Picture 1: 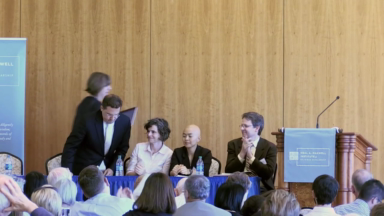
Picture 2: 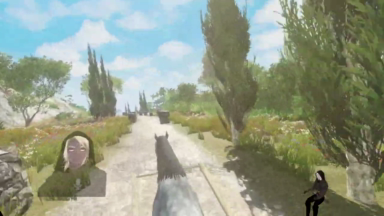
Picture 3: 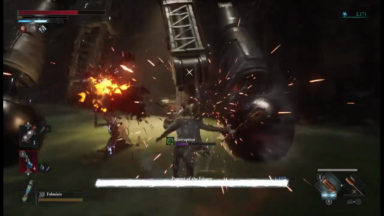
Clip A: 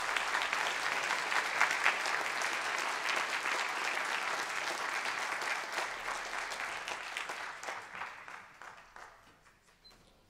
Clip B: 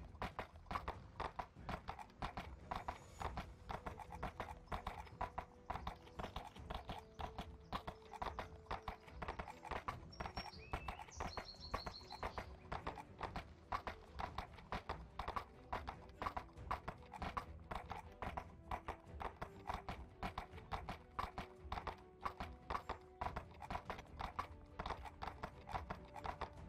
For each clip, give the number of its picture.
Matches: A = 1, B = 2